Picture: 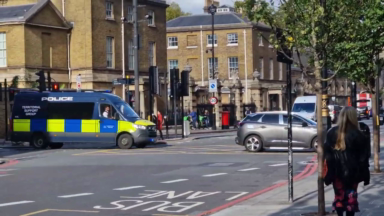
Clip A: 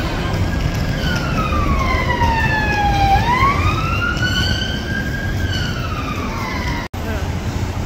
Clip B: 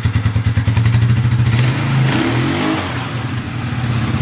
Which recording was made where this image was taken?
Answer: A